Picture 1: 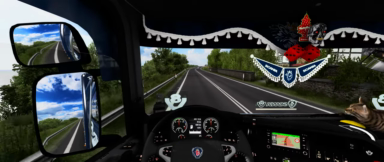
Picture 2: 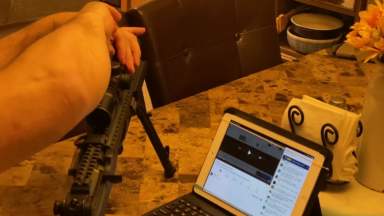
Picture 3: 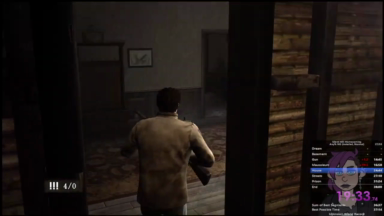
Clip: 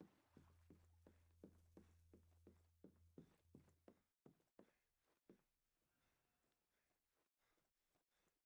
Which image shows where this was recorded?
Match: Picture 3